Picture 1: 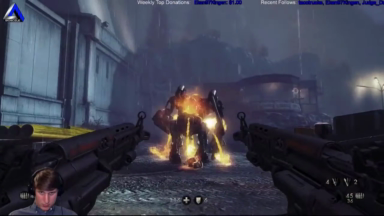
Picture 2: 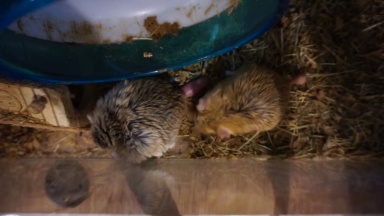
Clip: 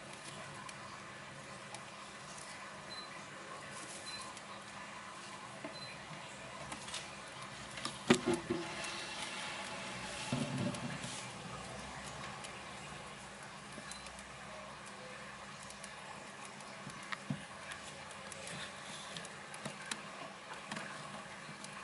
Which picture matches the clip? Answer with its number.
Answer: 2